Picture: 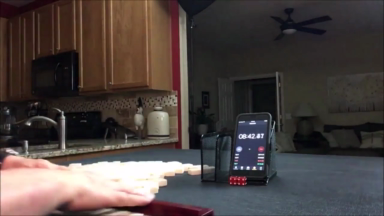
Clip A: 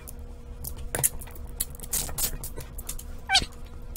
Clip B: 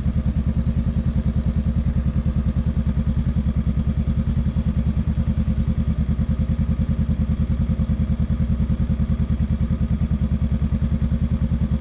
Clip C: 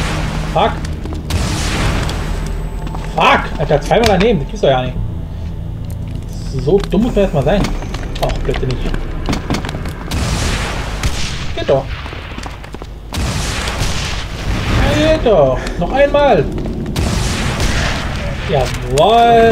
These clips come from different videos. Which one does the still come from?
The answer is A